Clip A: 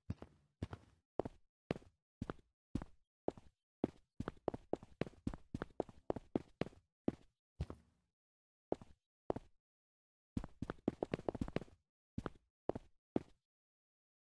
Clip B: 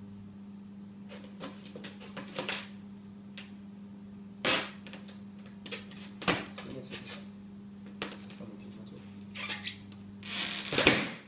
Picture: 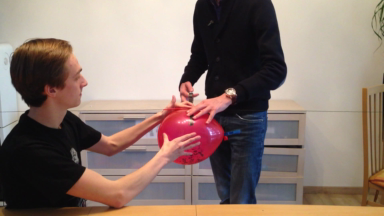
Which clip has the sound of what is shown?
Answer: B